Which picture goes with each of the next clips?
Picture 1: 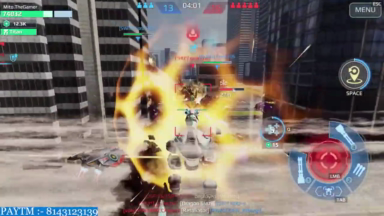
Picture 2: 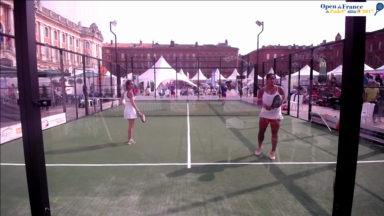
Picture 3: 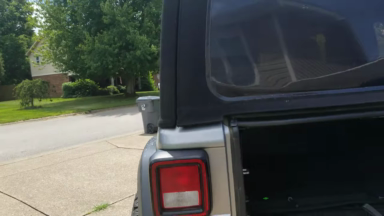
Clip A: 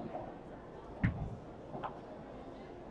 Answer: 2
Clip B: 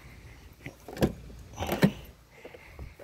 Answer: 3